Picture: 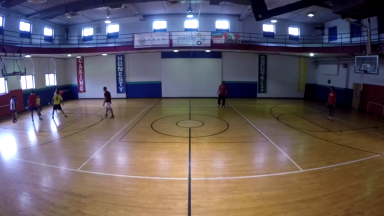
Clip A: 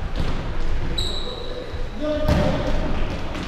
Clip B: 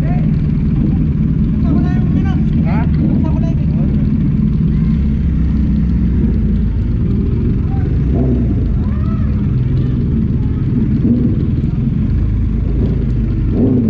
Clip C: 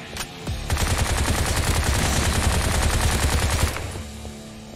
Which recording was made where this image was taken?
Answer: A